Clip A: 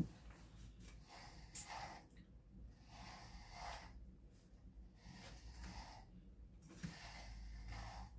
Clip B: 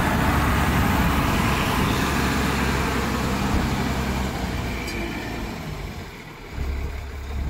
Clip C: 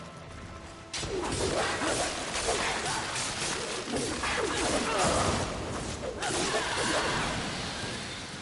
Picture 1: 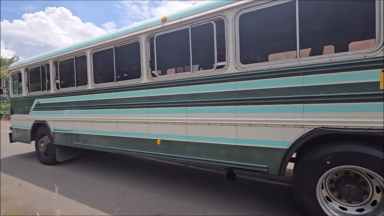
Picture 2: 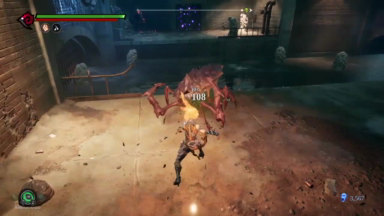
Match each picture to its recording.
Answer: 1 B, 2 C